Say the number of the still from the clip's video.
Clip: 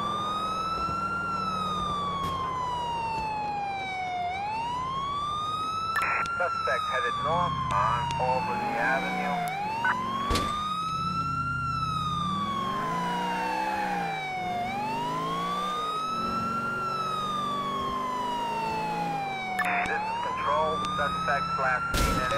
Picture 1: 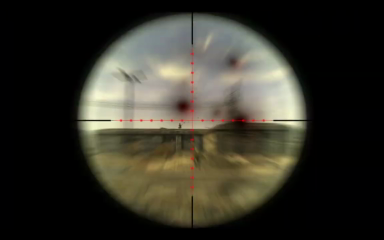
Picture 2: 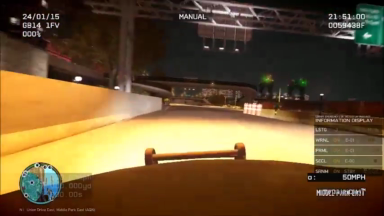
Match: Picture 2